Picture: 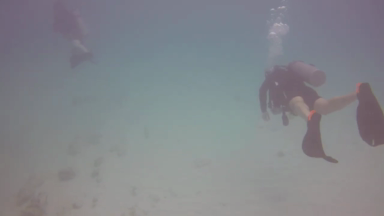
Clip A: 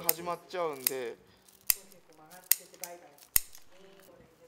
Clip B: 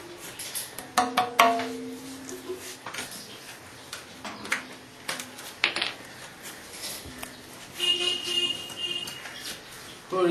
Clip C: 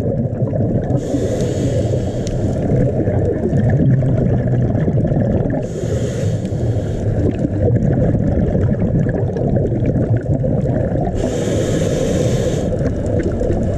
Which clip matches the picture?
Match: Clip C